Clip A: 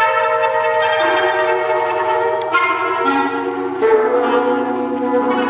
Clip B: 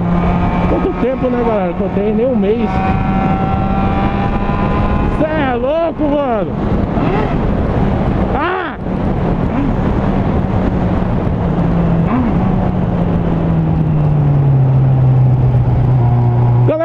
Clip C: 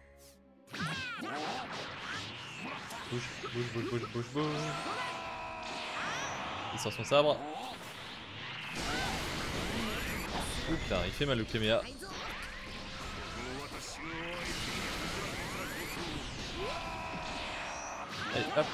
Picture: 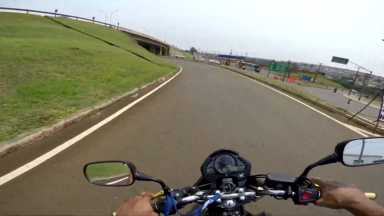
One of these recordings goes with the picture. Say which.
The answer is B